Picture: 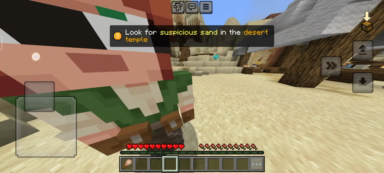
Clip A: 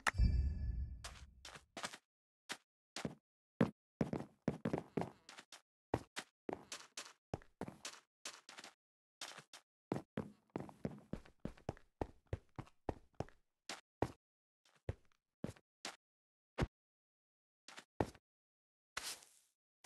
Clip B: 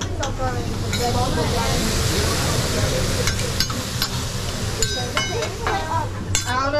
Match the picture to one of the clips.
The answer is A